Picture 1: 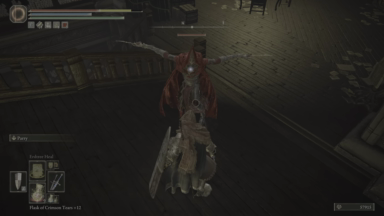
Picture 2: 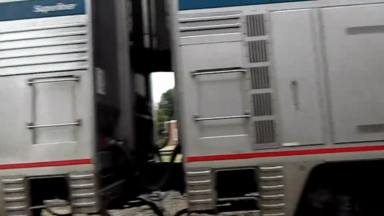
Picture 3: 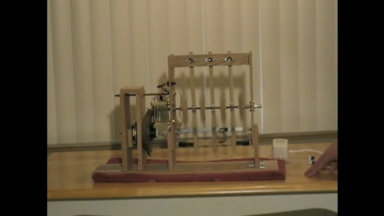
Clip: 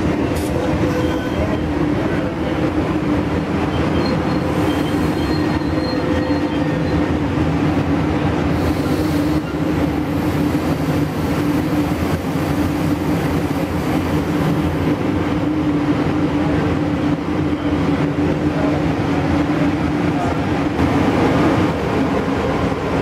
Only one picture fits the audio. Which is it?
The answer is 2